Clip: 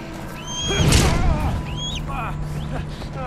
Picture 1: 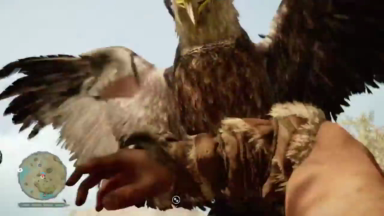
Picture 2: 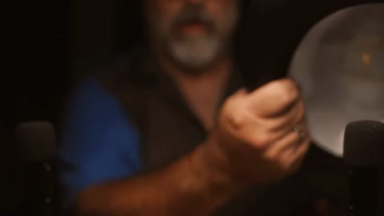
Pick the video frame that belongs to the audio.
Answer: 1